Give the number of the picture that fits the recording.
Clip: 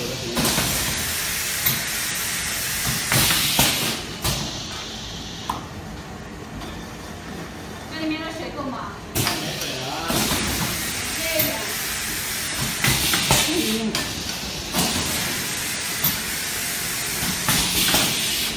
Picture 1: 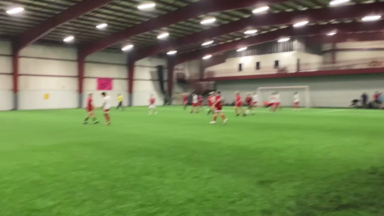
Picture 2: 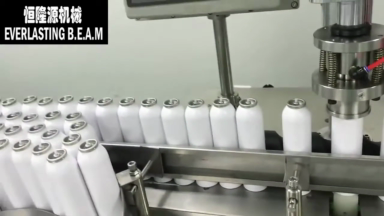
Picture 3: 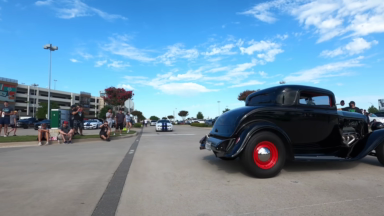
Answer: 2